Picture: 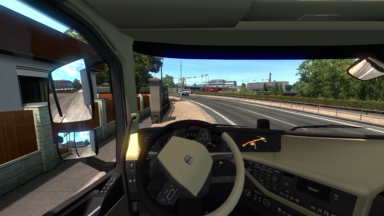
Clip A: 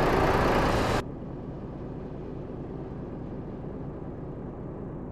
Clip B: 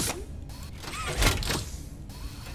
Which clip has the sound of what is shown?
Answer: A